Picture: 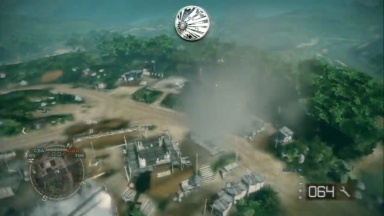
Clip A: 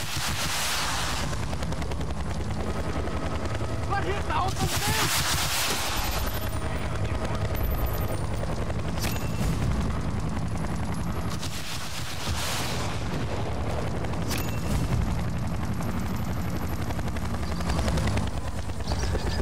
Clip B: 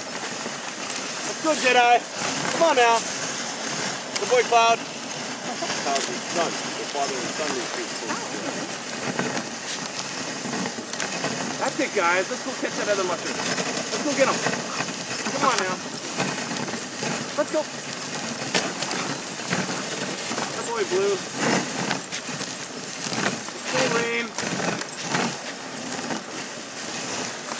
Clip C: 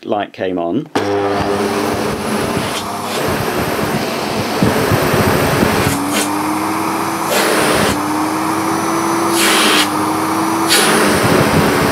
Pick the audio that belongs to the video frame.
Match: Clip A